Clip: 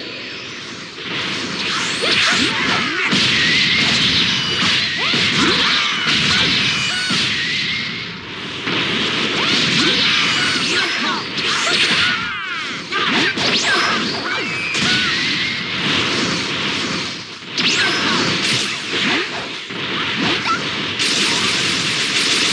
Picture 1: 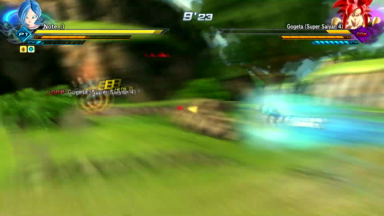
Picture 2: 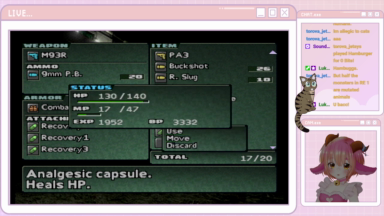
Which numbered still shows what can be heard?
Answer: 1